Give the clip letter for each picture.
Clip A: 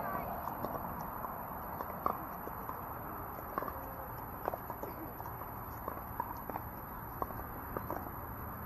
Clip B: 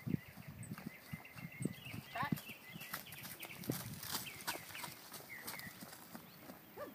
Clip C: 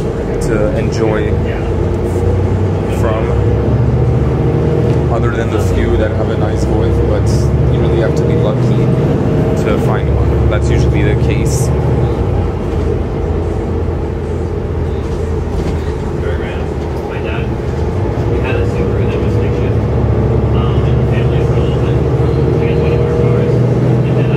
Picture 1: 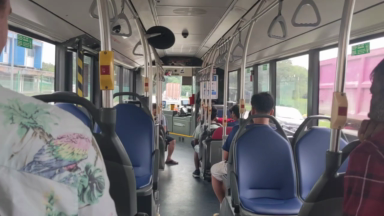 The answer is C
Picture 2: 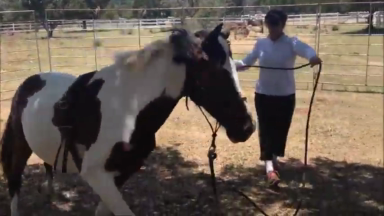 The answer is B